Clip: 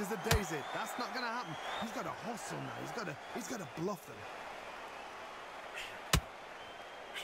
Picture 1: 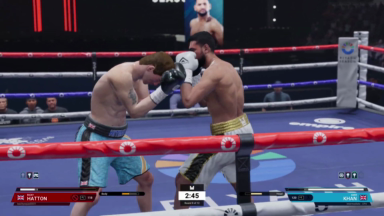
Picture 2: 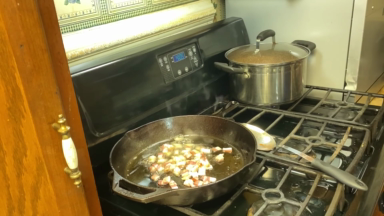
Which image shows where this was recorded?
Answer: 1